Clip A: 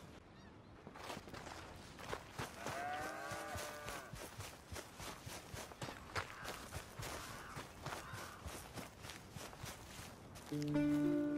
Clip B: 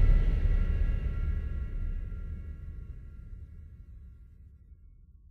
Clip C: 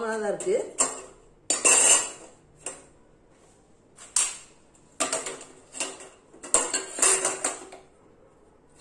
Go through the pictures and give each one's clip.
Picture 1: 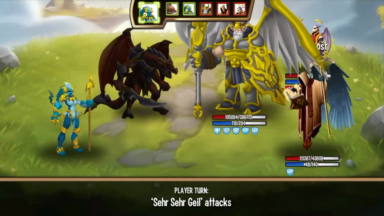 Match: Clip B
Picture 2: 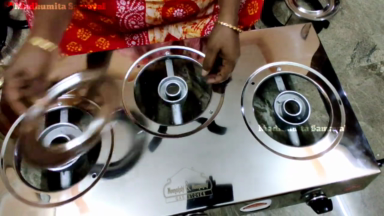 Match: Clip C